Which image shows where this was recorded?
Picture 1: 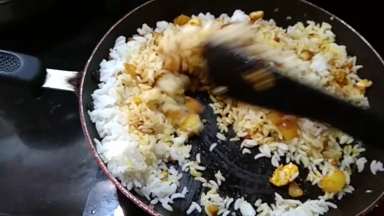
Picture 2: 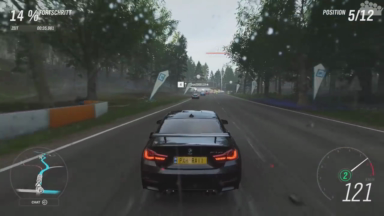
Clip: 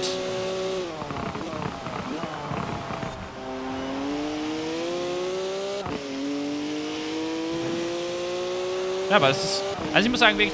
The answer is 2